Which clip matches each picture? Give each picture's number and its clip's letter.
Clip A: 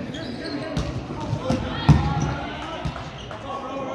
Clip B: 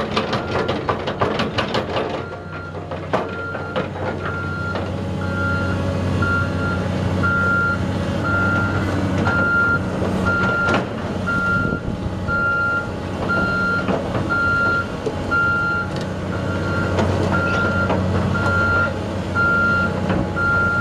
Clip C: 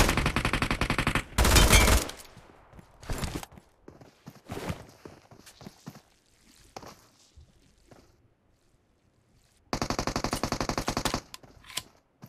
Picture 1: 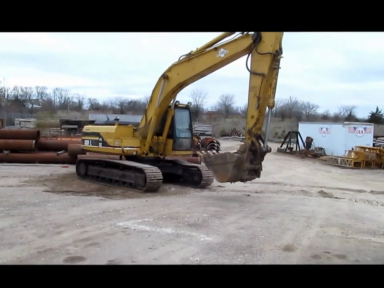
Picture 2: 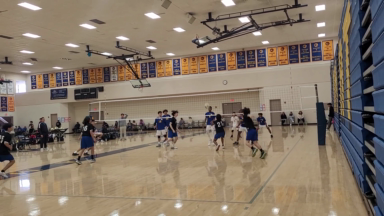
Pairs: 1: B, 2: A